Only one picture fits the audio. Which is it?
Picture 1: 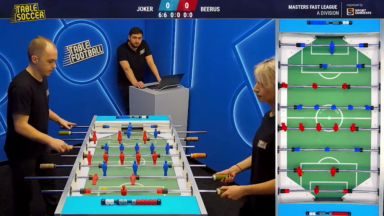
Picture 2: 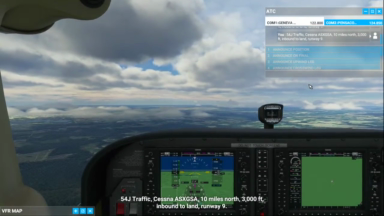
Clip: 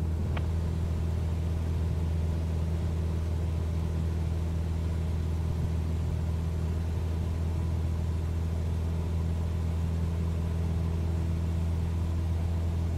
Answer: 2